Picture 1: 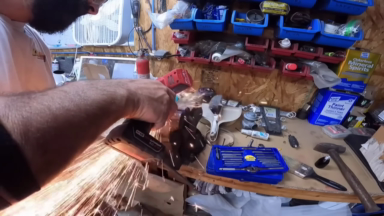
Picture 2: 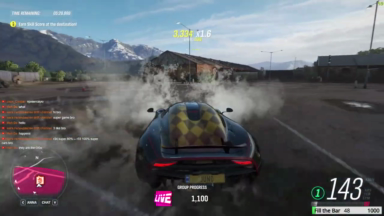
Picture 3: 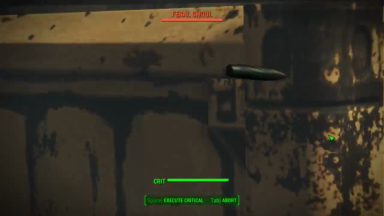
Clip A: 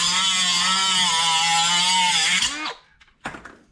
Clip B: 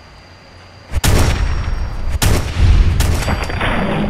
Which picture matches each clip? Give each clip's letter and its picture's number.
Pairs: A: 1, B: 3